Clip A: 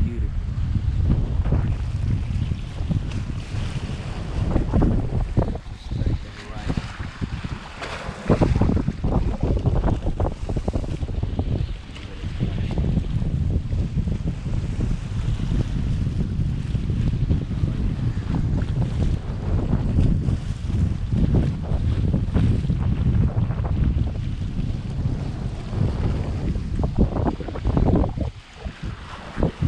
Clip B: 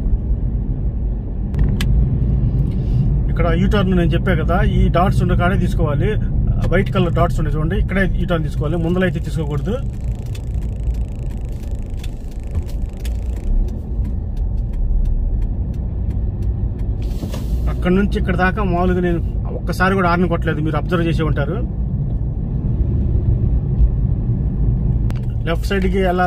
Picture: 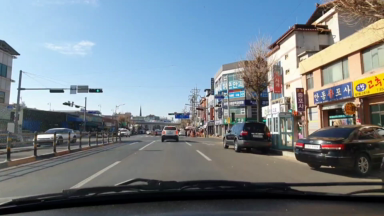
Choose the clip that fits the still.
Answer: B